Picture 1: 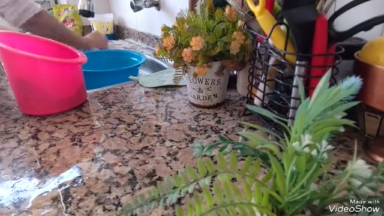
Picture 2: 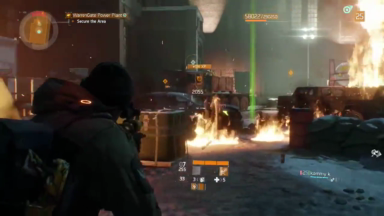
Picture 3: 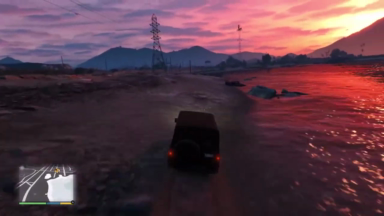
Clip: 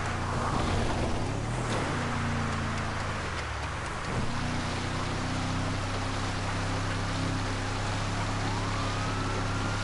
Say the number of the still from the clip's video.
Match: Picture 3